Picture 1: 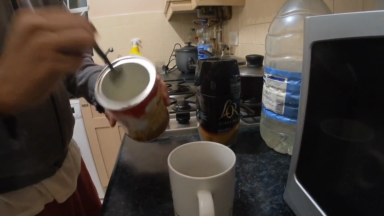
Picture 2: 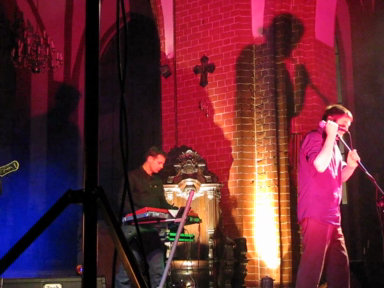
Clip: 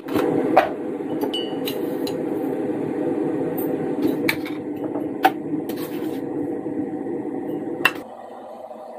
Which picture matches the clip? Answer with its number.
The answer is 1